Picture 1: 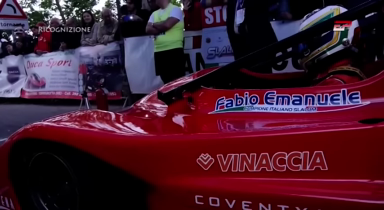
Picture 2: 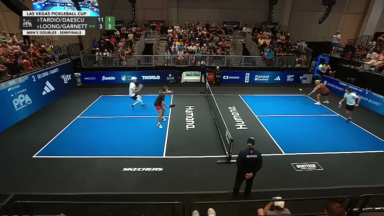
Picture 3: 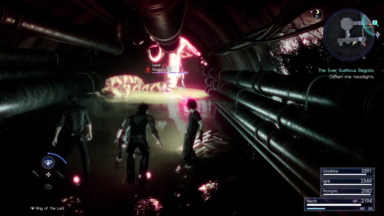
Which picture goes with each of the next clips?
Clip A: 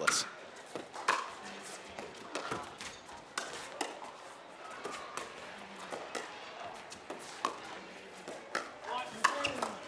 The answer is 2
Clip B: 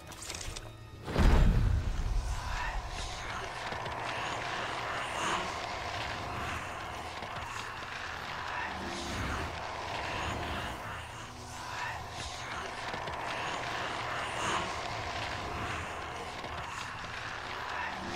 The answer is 3